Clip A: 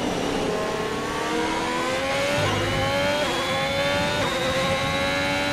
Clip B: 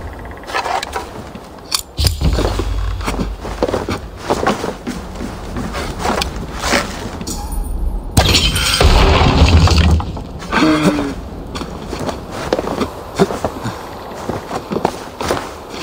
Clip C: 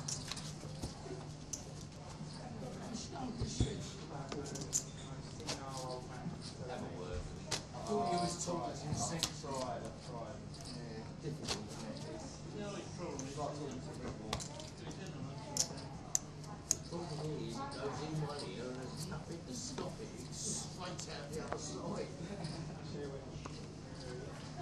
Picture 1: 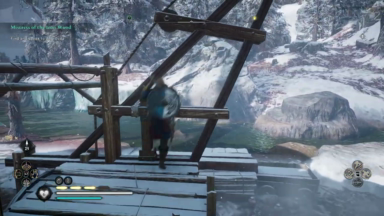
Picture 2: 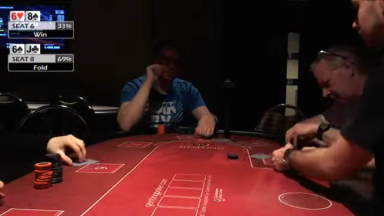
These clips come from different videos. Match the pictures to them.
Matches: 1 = B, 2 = C